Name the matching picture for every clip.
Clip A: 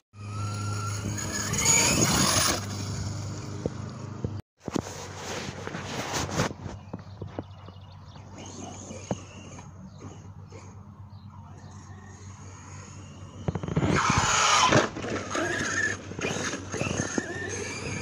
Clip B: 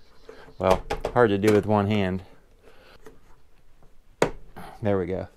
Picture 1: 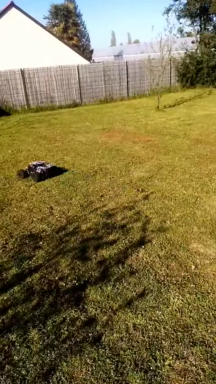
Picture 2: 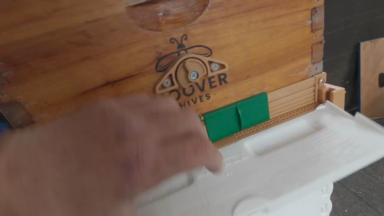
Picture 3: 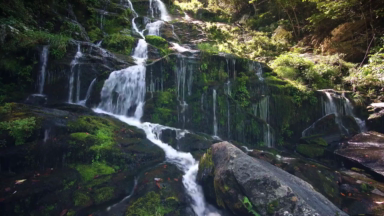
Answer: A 1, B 2